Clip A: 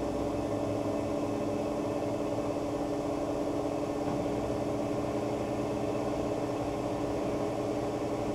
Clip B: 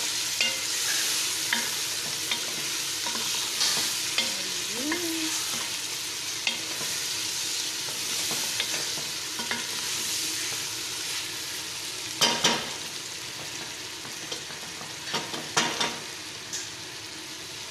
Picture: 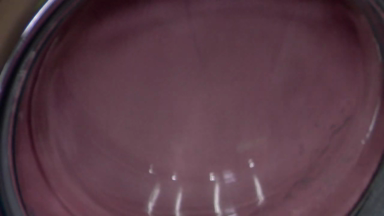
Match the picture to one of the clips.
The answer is A